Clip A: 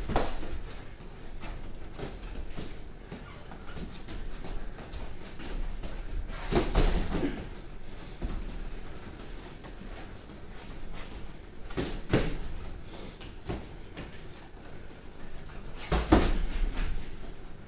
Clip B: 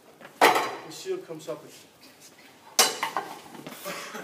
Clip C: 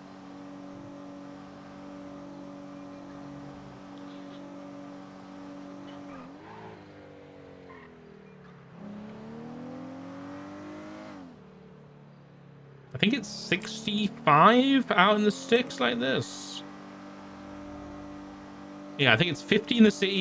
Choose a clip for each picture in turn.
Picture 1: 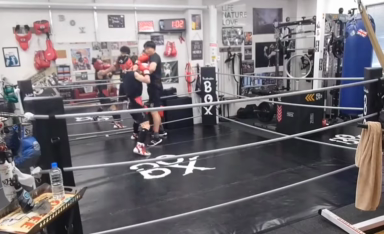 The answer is A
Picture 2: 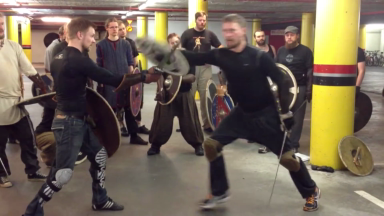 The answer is B